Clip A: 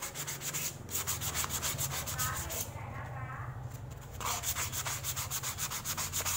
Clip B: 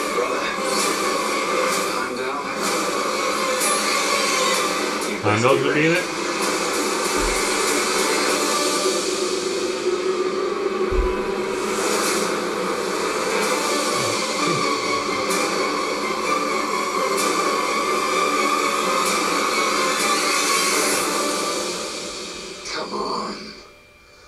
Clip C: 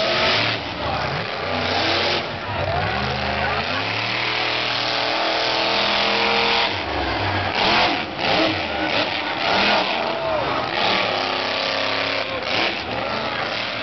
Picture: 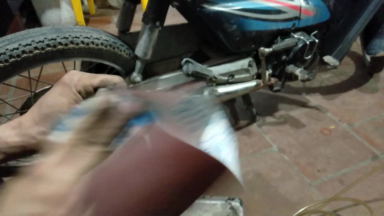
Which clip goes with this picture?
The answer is A